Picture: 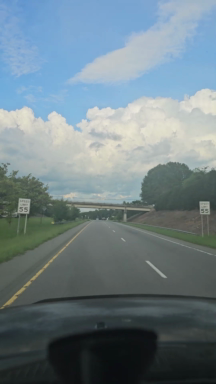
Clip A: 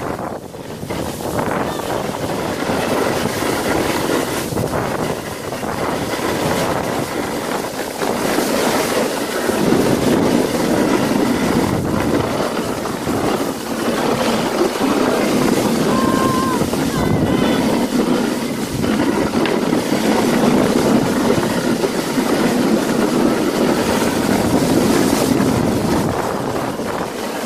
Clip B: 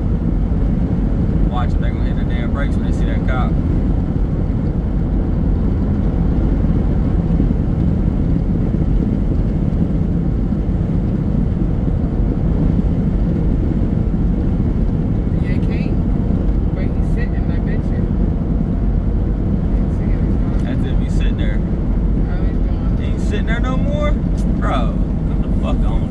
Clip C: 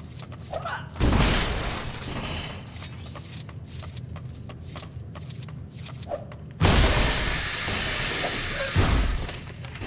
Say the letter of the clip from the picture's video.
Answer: B